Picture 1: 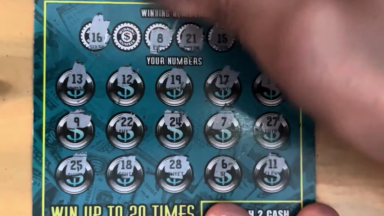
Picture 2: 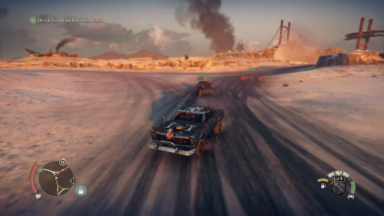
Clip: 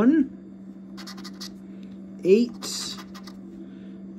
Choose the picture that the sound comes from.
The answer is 1